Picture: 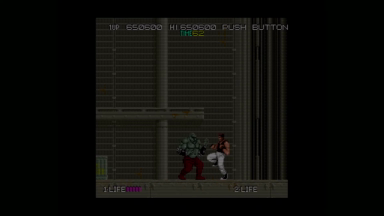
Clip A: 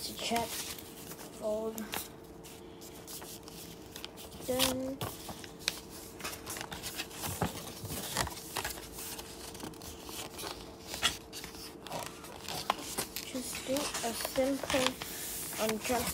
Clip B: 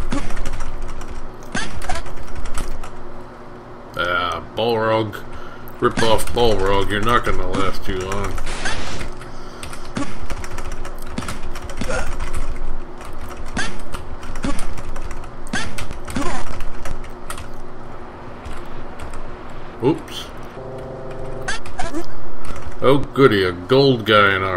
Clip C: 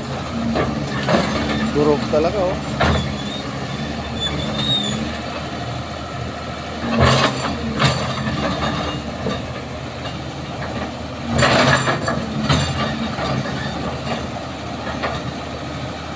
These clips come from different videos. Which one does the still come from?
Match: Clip B